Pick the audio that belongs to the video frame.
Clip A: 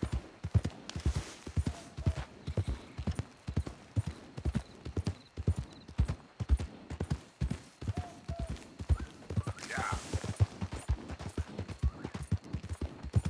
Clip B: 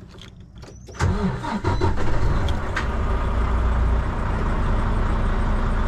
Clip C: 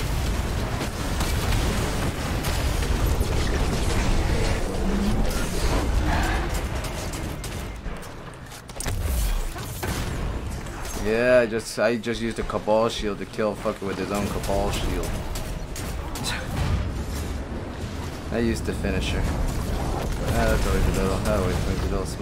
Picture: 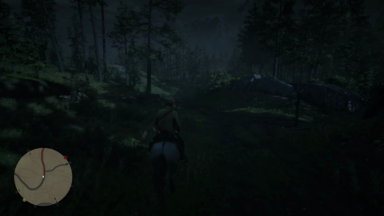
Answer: A